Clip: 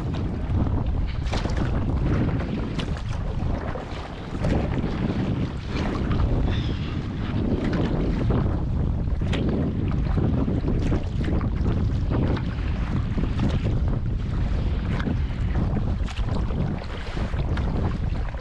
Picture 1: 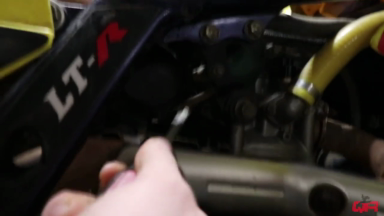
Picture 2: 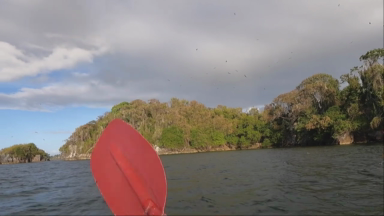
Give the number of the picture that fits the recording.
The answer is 2